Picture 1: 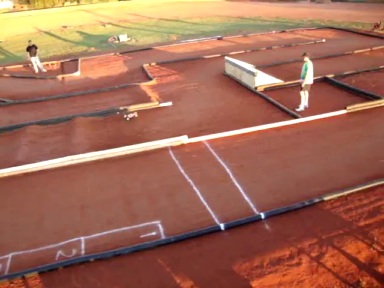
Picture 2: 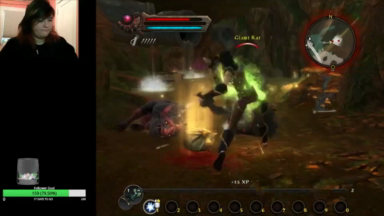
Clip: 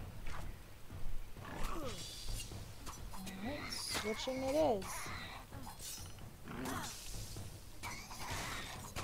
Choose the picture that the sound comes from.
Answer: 2